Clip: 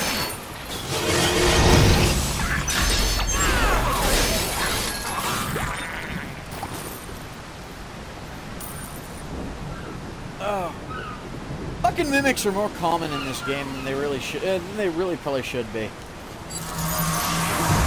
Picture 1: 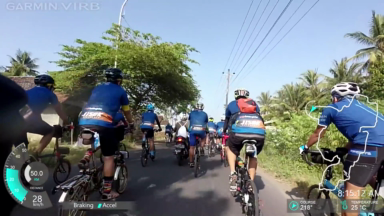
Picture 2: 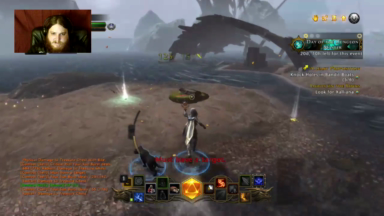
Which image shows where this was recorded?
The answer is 2